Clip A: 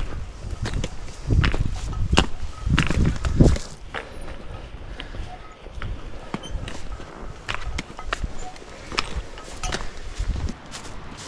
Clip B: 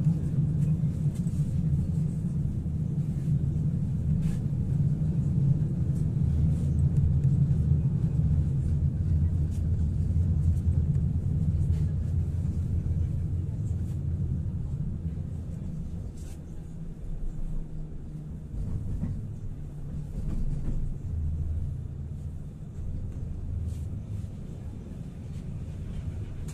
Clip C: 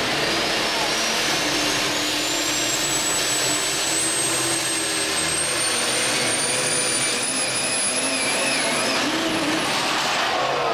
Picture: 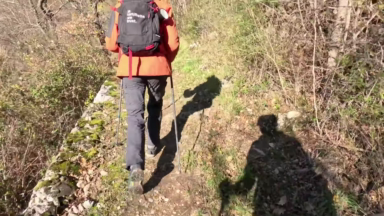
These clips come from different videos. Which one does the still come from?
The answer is A